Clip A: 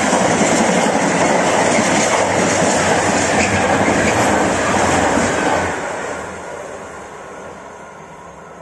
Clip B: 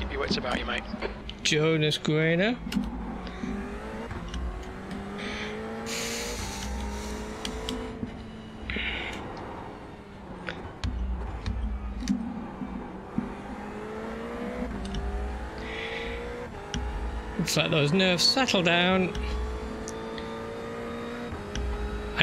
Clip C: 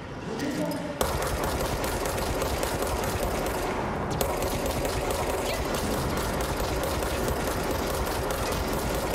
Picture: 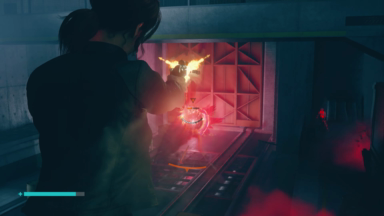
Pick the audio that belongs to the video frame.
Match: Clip C